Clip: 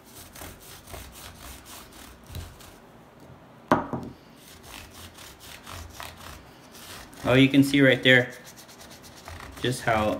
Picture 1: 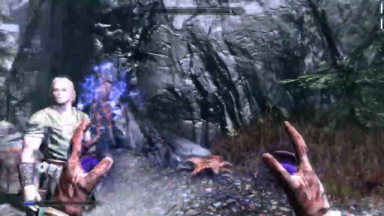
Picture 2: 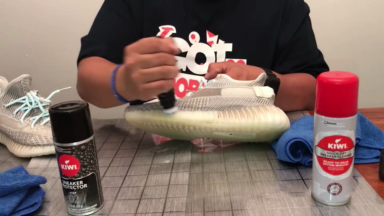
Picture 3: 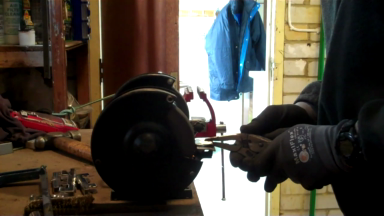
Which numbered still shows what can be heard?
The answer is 2